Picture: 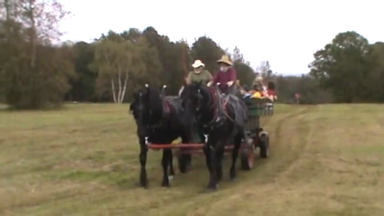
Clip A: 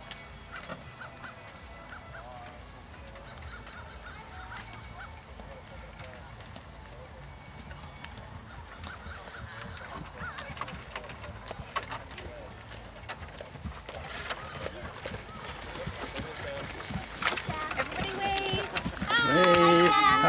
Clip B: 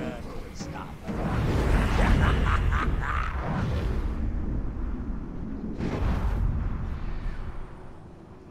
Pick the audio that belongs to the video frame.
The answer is A